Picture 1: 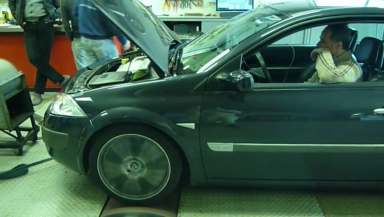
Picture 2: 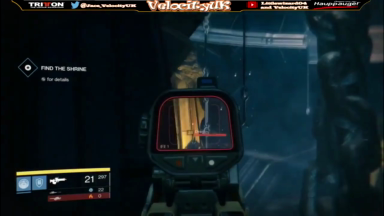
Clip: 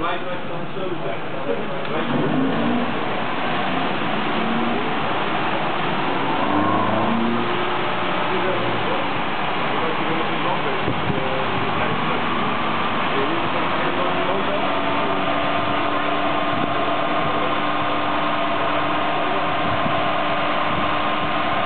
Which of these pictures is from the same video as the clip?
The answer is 1